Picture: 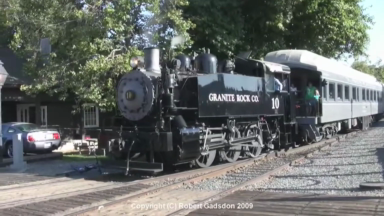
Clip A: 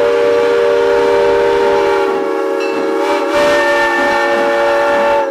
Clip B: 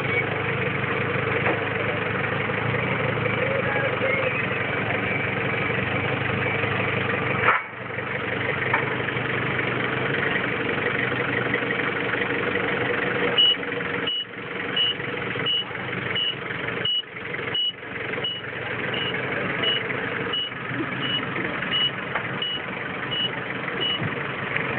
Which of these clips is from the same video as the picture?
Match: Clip A